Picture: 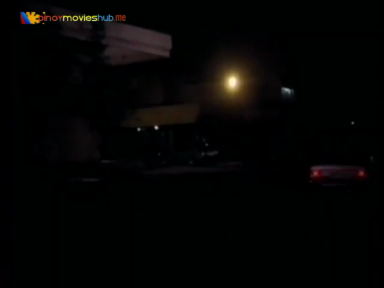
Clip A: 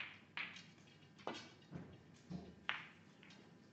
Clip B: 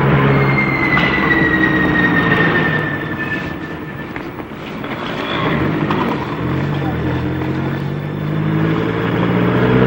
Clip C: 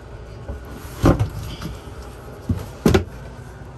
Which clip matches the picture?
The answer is B